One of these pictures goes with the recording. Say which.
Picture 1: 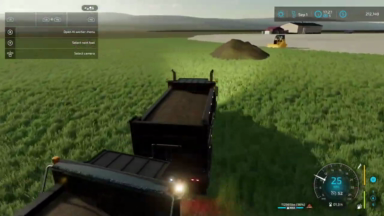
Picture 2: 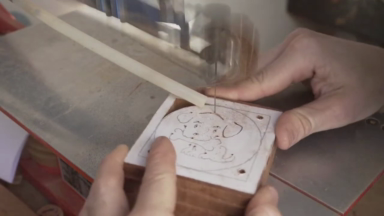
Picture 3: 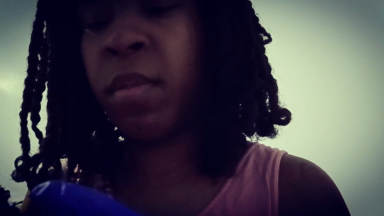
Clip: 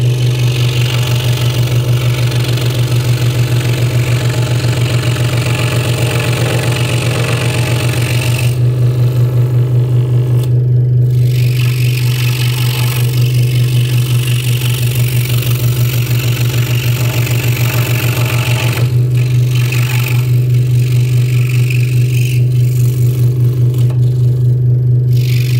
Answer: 2